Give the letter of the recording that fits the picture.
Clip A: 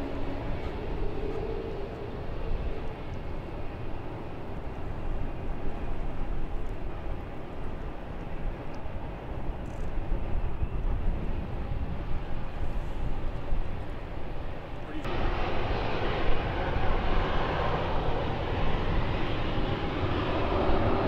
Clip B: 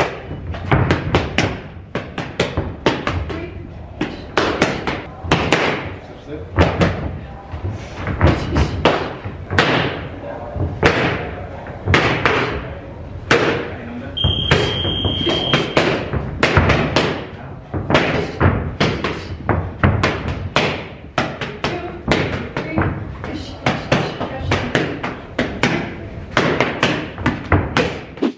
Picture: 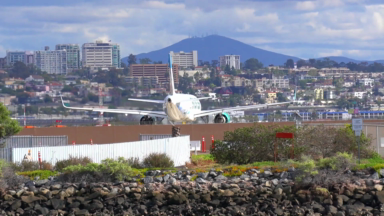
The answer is A